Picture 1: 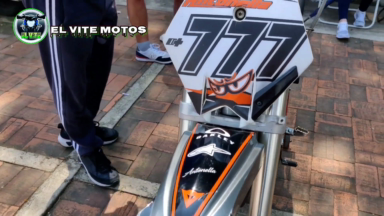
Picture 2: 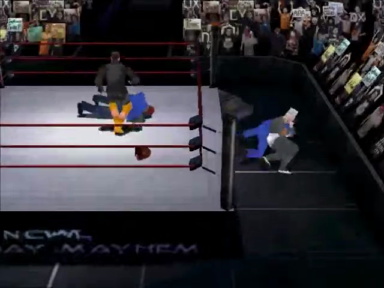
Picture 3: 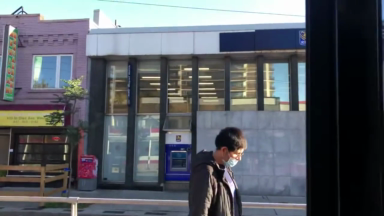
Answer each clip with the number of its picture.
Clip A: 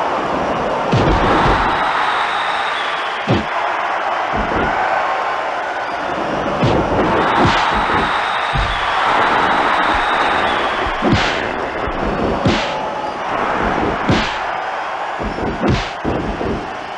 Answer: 2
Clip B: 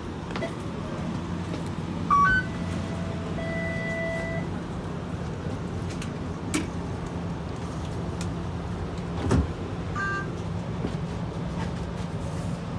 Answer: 3